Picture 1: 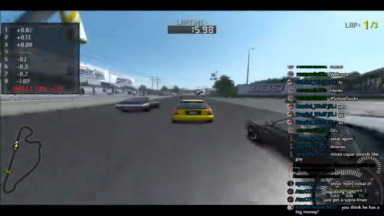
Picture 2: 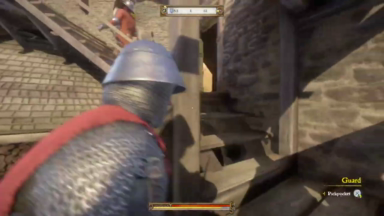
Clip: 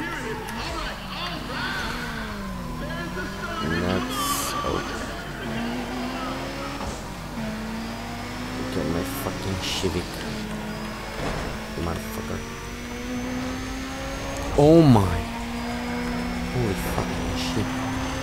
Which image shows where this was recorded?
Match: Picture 1